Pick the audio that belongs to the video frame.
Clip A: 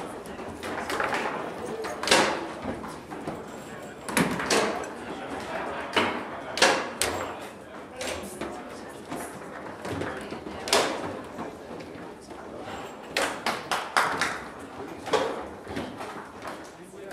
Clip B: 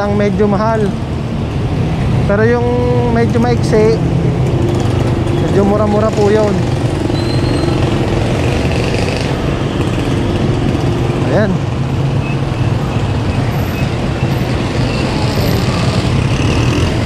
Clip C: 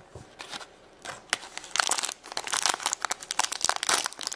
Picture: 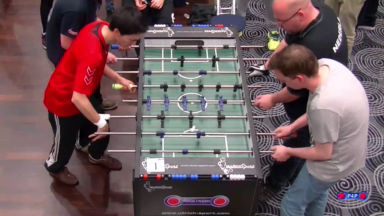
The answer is A